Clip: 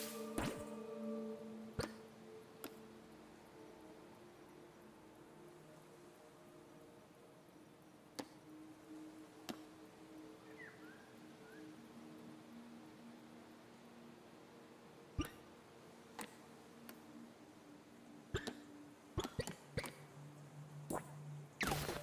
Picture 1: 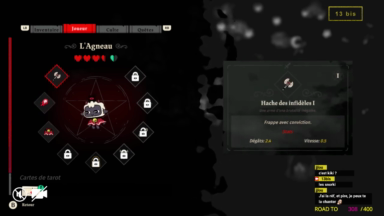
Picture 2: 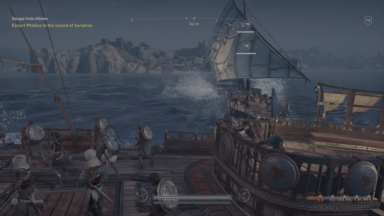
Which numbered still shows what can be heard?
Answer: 1